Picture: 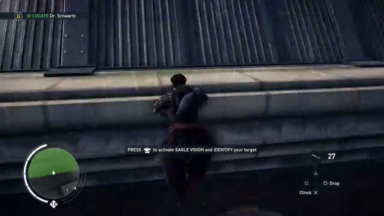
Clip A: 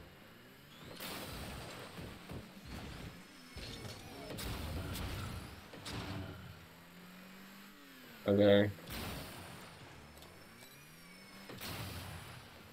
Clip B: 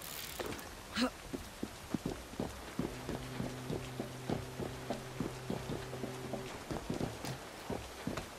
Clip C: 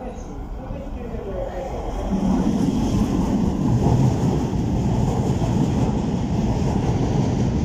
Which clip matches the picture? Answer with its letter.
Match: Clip B